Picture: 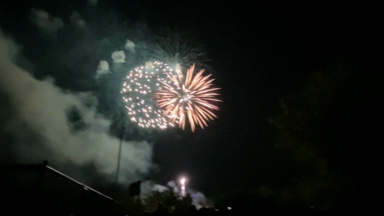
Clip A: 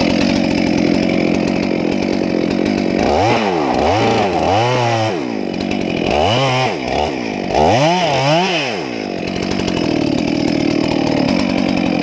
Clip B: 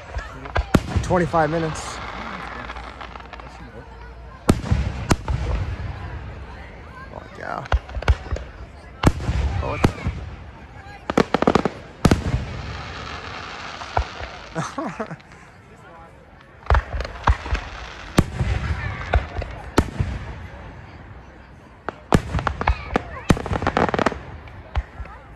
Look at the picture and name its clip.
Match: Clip B